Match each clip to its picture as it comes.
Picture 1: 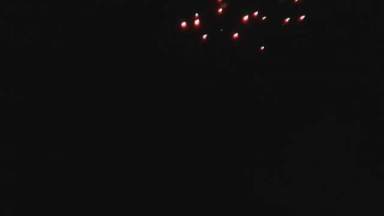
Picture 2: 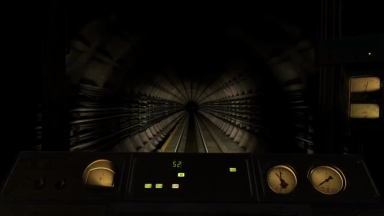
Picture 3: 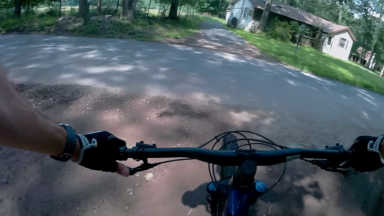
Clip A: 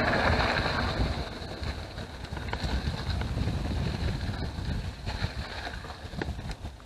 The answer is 3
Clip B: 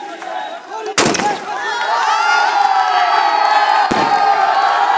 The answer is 1